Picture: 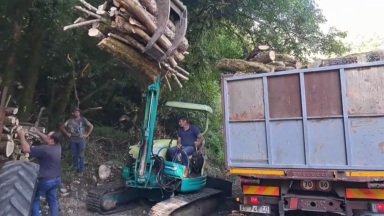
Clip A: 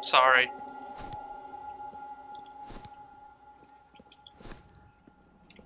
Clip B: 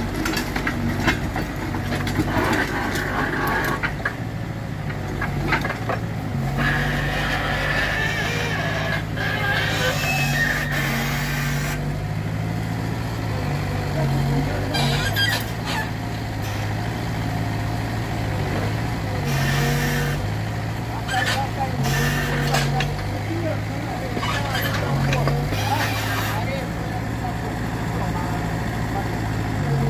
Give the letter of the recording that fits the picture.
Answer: B